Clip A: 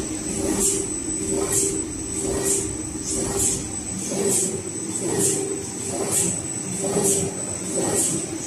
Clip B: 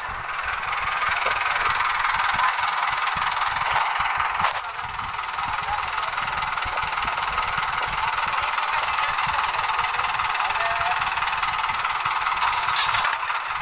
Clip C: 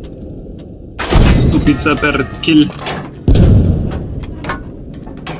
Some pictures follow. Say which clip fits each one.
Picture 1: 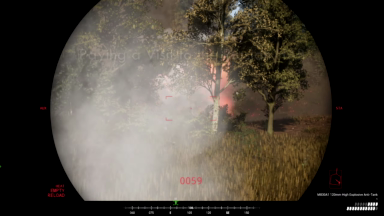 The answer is C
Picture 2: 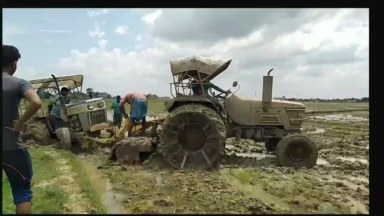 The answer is B